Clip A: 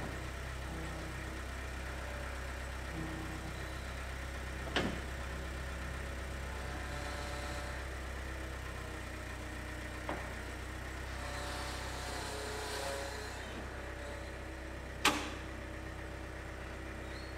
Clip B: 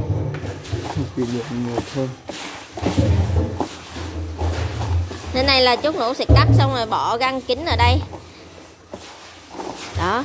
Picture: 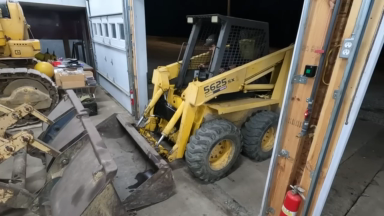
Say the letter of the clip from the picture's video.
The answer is A